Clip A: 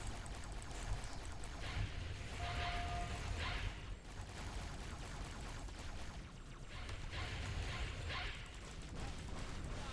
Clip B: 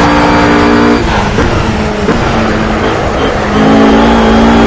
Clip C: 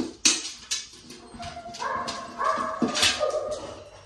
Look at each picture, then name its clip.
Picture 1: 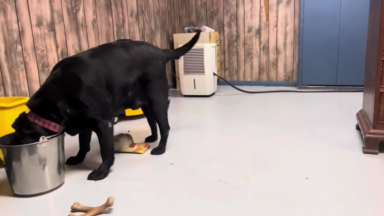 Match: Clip C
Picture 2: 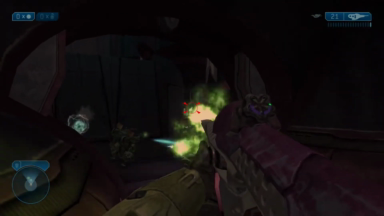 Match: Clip A